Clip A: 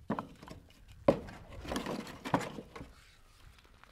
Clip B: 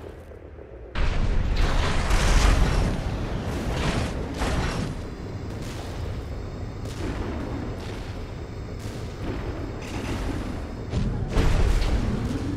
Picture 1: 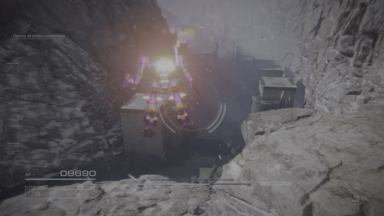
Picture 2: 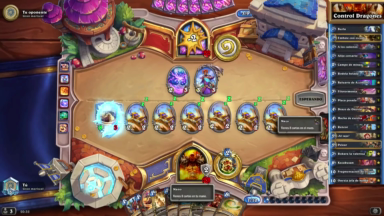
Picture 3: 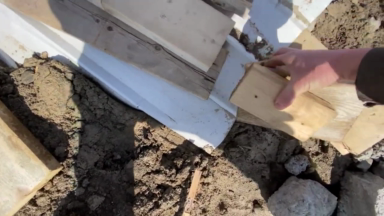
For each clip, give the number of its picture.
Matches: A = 3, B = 1